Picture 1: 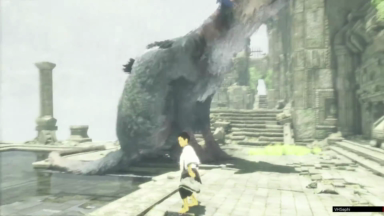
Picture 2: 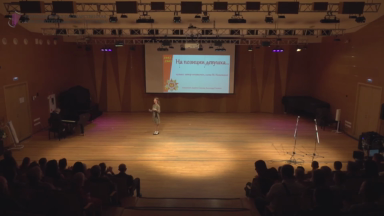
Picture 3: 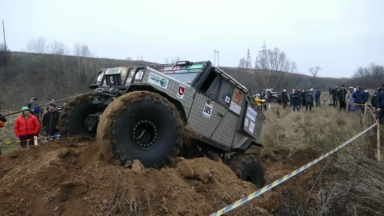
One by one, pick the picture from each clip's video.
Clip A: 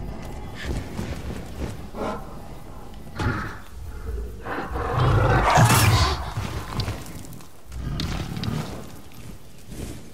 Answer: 1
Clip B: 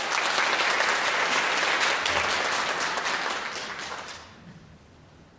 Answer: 2